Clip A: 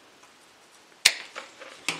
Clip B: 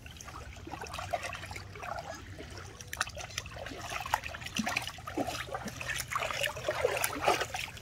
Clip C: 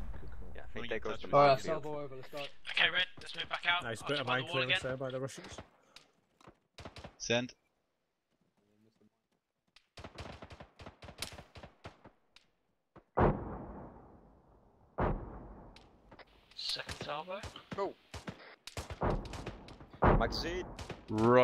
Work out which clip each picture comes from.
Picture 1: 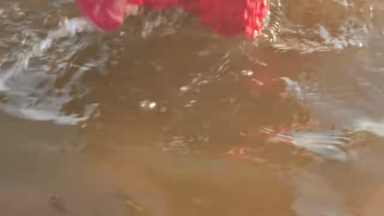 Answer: B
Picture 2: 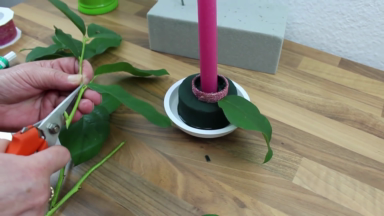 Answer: A